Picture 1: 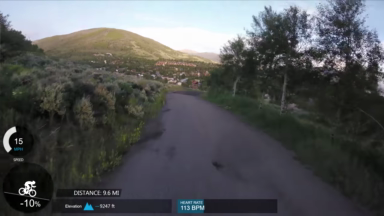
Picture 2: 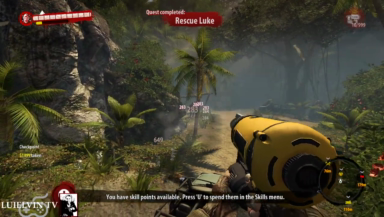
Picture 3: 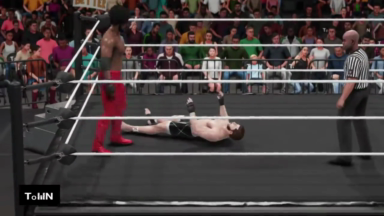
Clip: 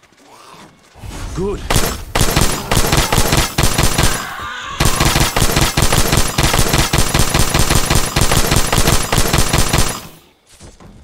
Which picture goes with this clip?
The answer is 2